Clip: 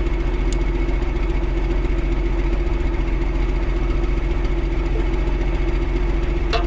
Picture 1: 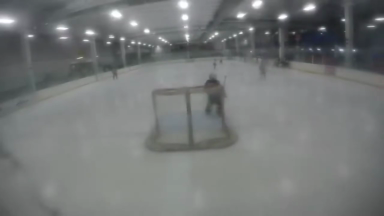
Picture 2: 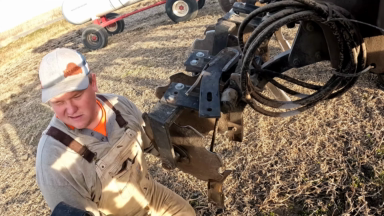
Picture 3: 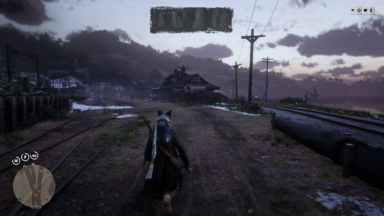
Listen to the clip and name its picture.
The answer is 2